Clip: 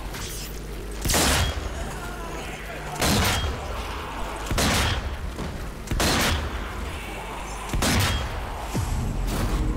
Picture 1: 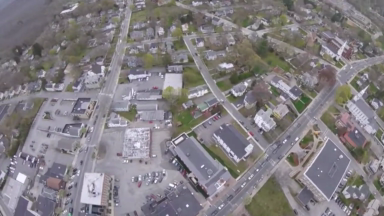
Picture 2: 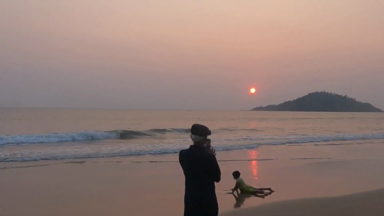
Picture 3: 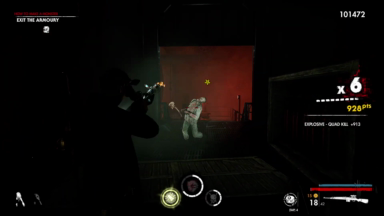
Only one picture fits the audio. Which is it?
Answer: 3